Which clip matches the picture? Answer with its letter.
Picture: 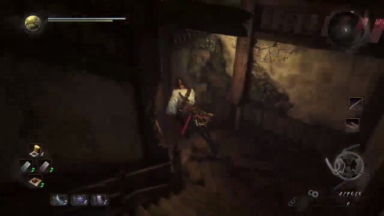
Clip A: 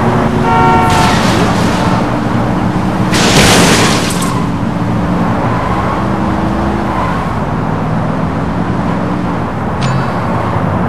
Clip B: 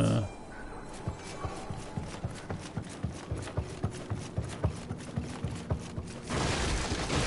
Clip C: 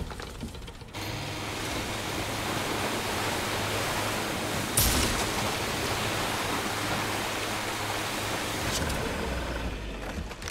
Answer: B